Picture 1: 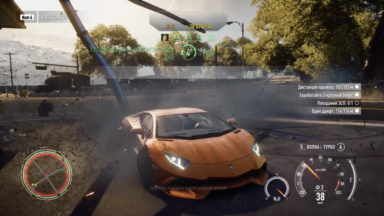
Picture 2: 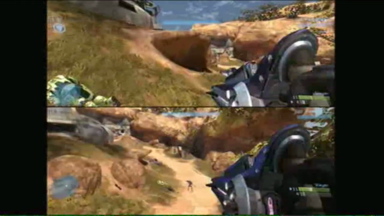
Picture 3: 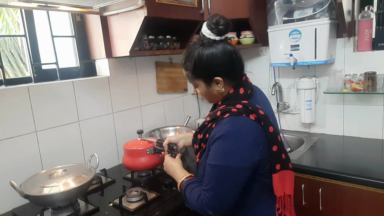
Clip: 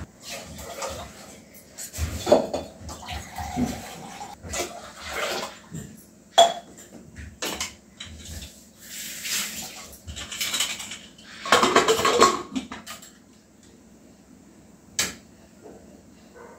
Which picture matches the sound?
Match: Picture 3